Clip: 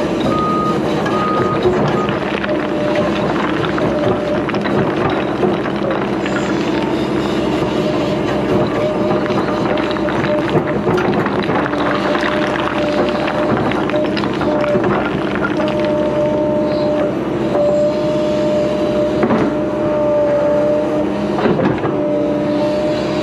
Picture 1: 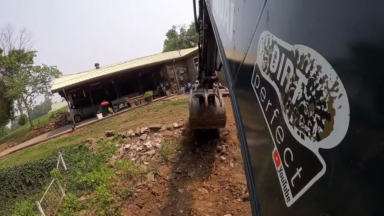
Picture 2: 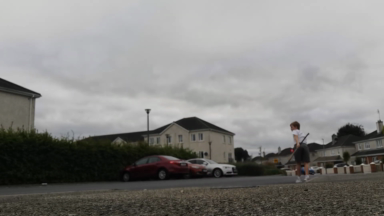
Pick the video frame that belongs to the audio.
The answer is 1